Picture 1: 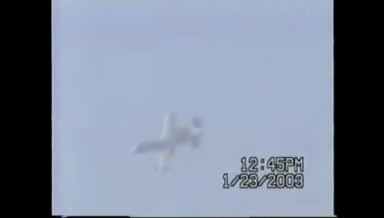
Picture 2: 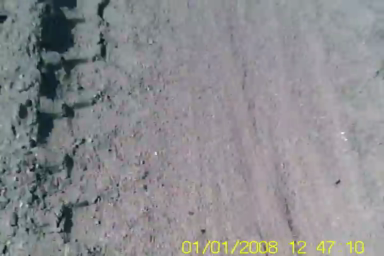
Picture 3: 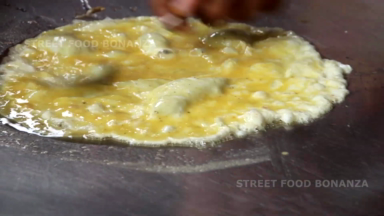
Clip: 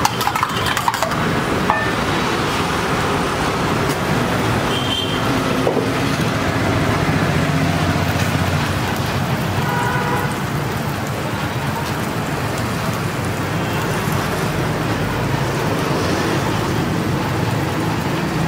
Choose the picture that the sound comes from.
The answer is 3